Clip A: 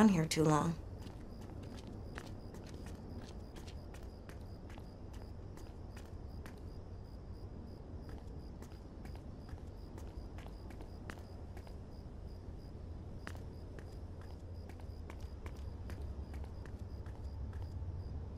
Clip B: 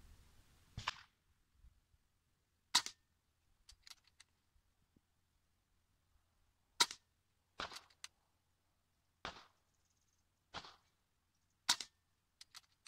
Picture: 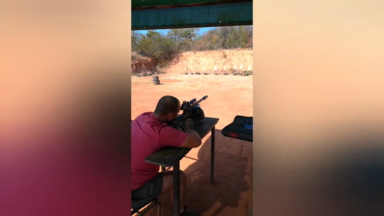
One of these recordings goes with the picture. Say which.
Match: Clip B